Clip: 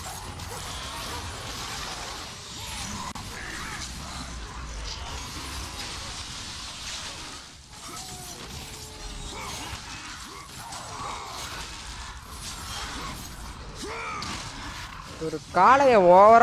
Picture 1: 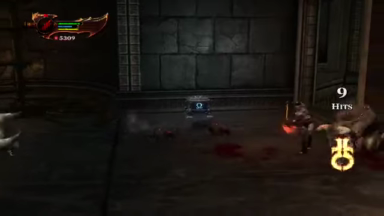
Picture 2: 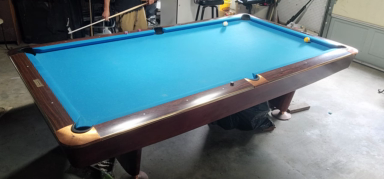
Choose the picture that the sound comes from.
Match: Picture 1